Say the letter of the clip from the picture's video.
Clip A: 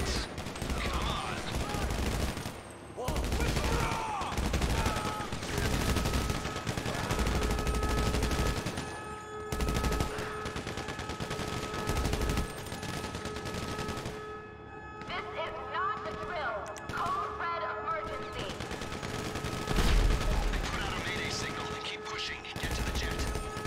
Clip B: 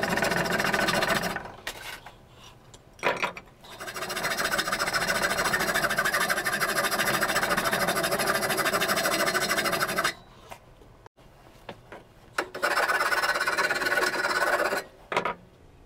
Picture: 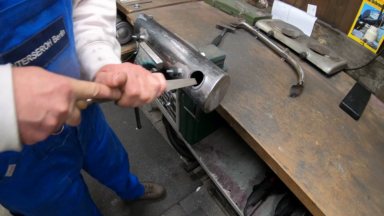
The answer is B